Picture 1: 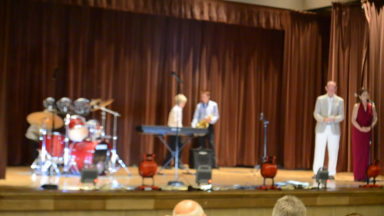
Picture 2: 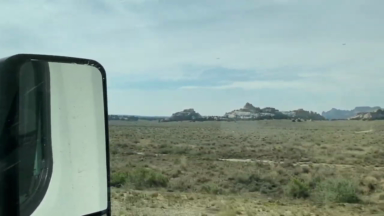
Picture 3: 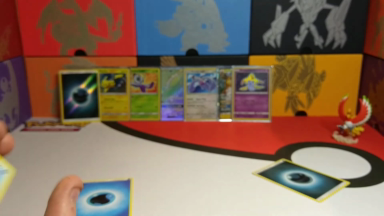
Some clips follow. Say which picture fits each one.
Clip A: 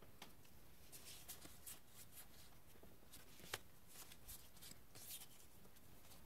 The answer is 3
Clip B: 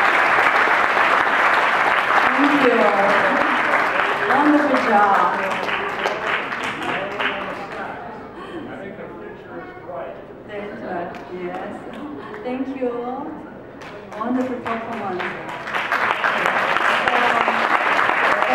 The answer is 1